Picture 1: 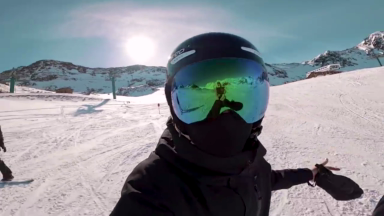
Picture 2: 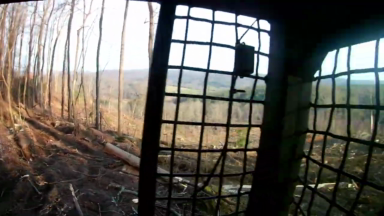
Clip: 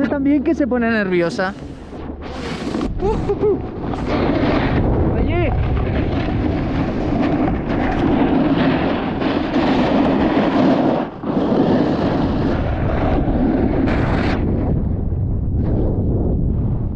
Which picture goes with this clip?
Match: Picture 1